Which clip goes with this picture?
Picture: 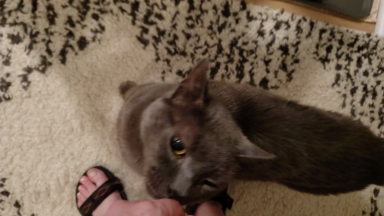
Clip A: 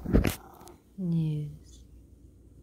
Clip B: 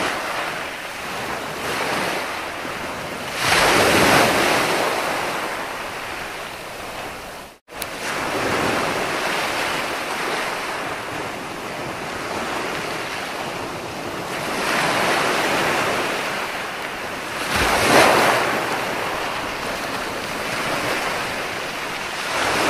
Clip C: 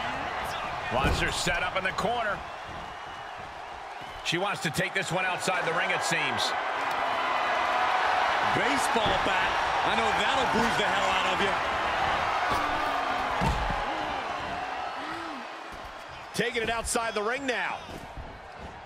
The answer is A